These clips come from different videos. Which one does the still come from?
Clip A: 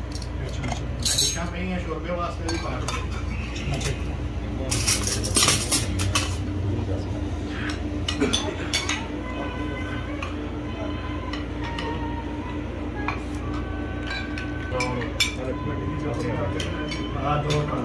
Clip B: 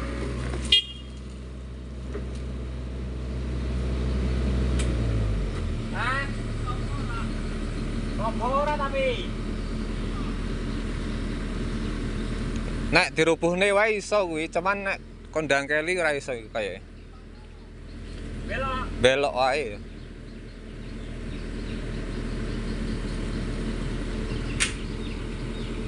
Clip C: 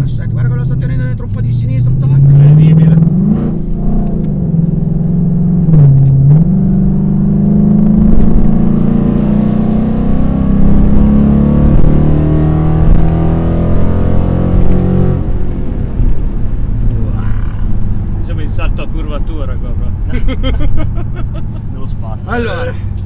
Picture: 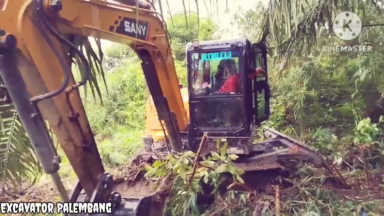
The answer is B